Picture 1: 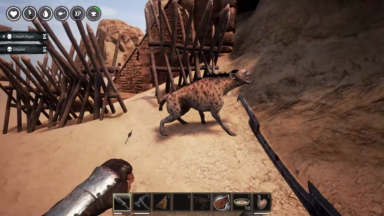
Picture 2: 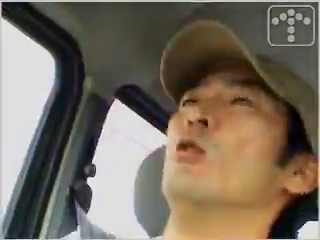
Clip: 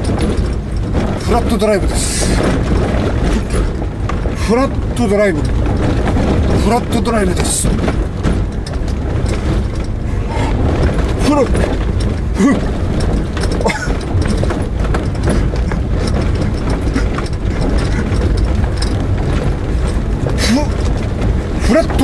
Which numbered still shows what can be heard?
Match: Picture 2